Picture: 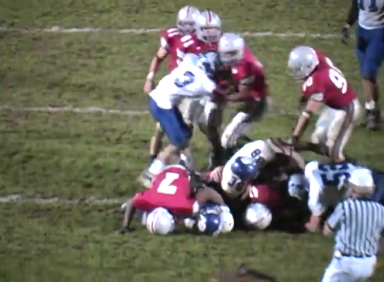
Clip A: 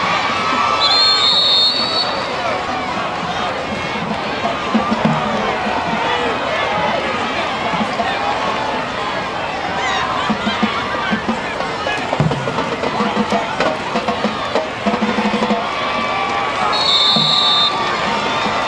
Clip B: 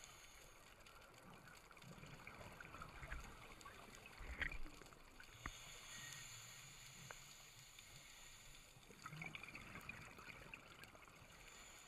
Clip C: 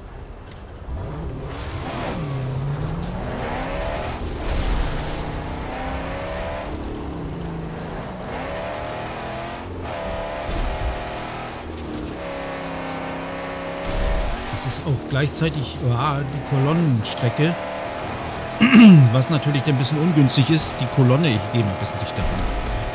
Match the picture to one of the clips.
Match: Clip A